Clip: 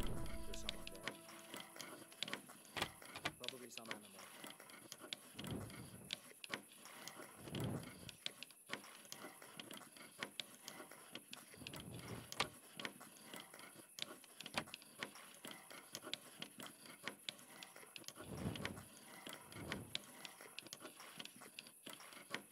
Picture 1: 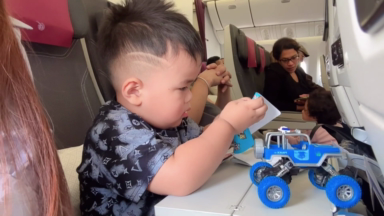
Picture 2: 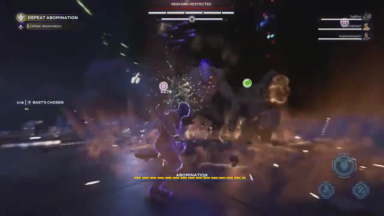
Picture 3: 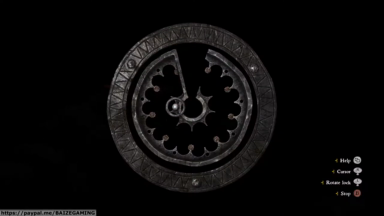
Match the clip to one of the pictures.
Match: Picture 3